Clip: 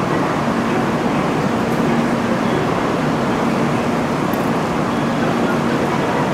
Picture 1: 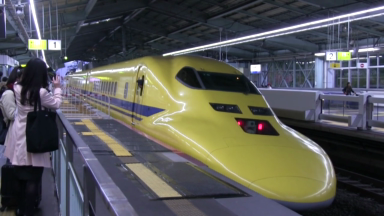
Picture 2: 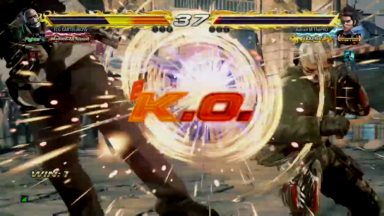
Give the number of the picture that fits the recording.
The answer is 1